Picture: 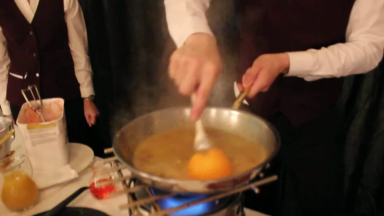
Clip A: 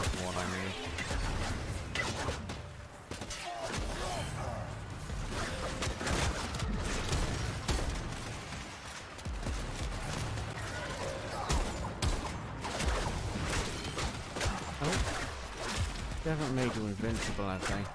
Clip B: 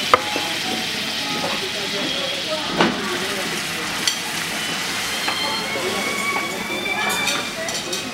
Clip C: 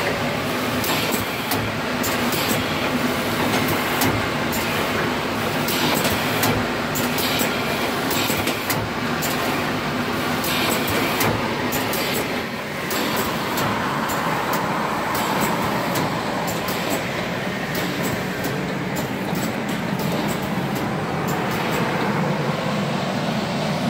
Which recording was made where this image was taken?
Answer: B